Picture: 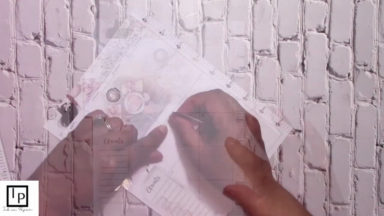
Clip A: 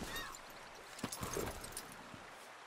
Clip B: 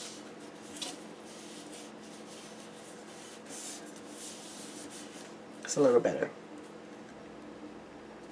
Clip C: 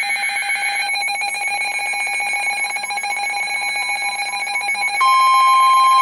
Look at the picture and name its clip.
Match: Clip B